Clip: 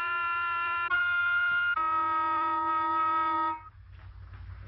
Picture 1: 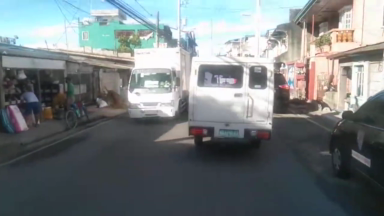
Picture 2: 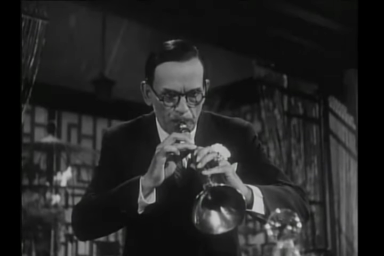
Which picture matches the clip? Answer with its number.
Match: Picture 2